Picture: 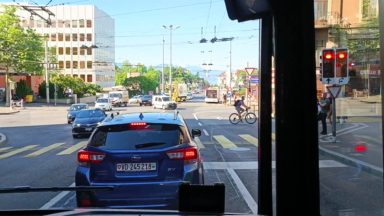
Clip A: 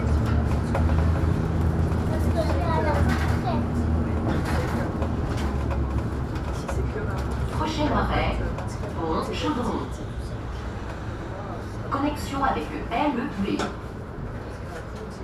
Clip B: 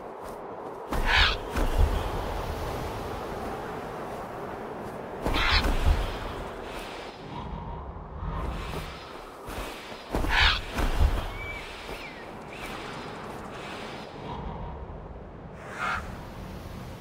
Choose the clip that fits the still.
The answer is A